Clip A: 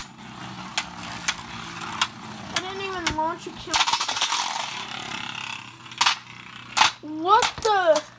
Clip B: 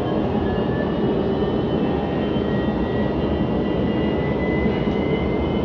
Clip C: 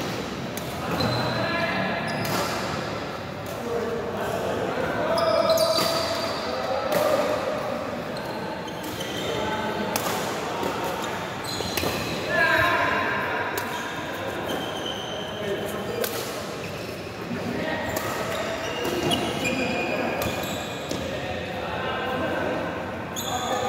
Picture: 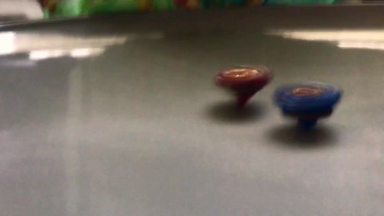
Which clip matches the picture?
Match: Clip A